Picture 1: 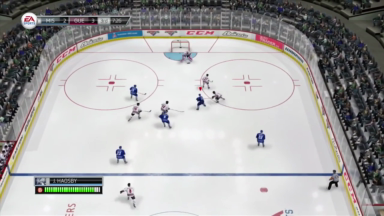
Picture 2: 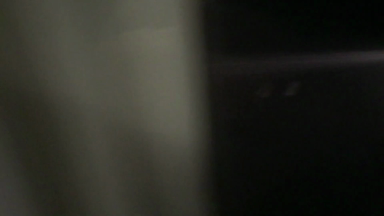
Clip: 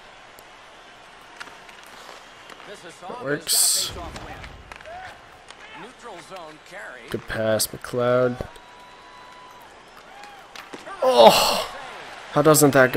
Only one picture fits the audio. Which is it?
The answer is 1